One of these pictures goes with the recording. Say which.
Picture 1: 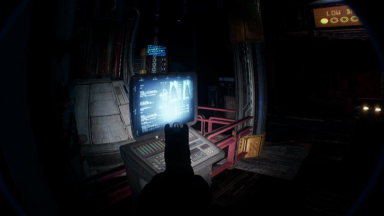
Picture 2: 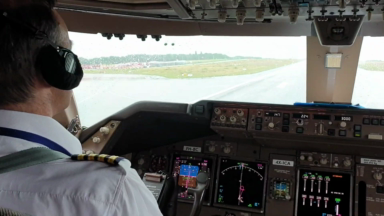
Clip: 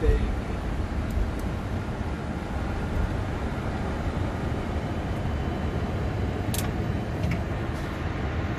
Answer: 2